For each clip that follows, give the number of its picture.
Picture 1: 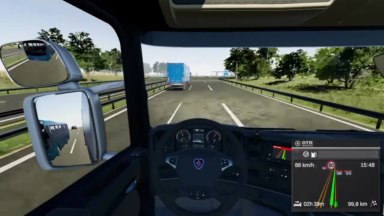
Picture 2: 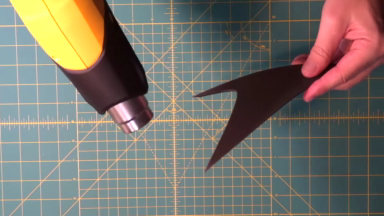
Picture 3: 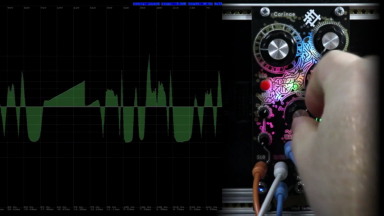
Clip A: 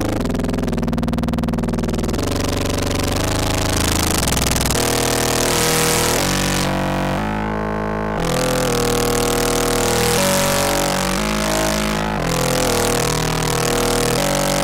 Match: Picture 3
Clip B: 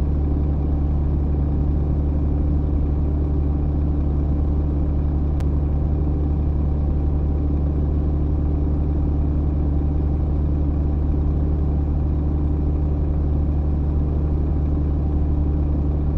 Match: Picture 1